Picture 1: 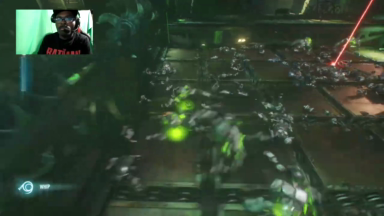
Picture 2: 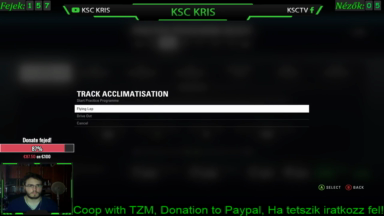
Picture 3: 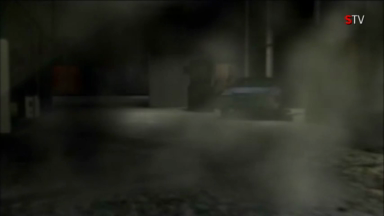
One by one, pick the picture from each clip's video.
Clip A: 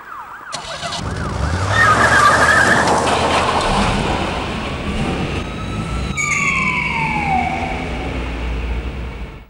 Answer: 3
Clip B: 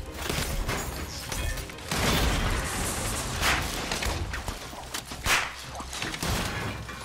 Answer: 1